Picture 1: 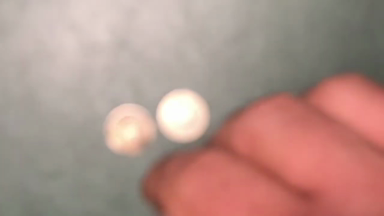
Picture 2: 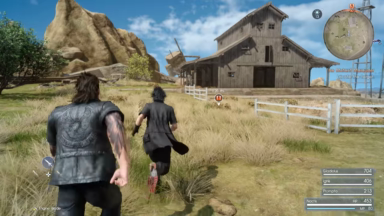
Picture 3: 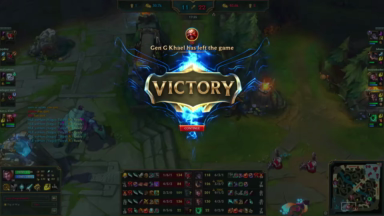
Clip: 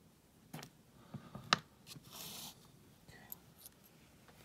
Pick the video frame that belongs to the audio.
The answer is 1